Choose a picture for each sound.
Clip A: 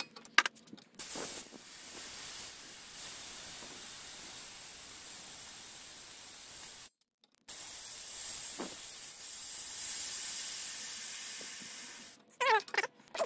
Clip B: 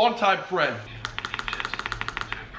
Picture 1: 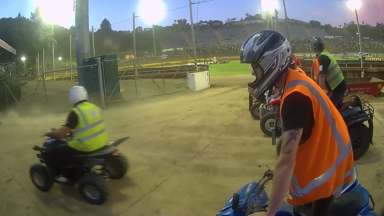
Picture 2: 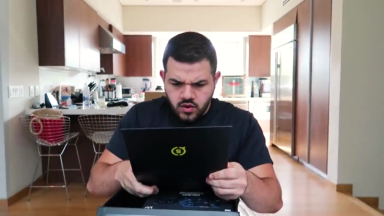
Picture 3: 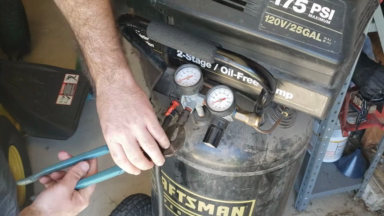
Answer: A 3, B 2